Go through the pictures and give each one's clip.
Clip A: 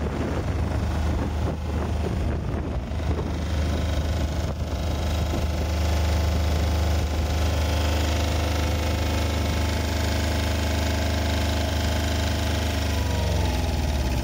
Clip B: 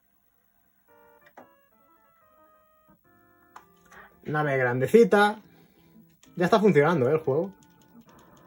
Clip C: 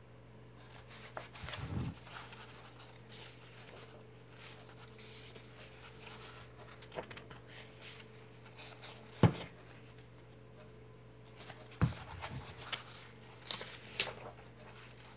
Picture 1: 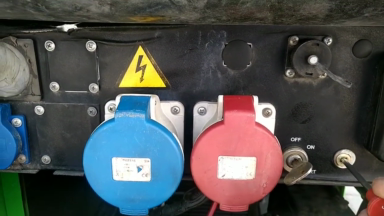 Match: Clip A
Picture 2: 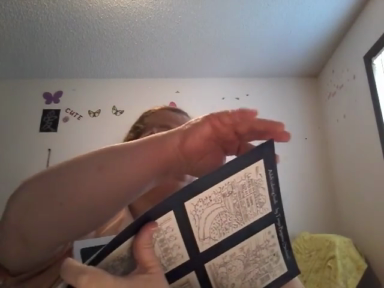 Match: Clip C